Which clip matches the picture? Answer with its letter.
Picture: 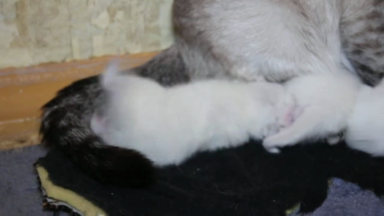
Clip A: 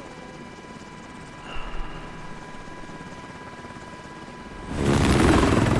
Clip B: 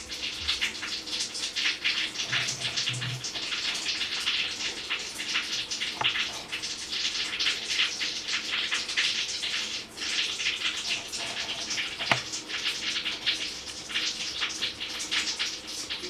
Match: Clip B